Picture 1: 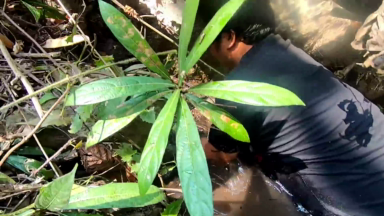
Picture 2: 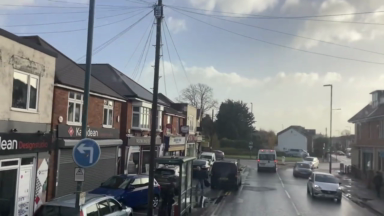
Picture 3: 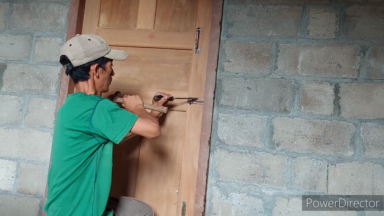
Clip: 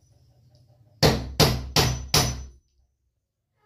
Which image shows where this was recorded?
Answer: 3